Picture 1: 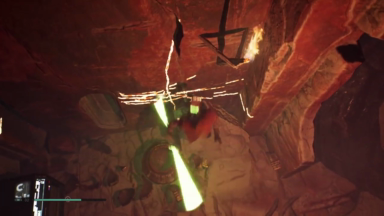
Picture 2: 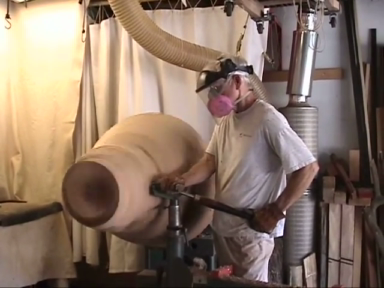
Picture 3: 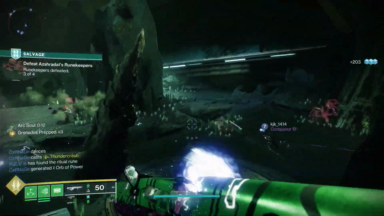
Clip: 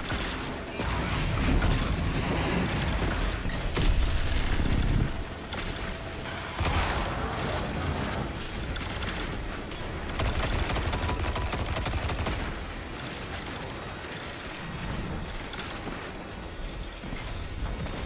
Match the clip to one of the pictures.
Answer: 3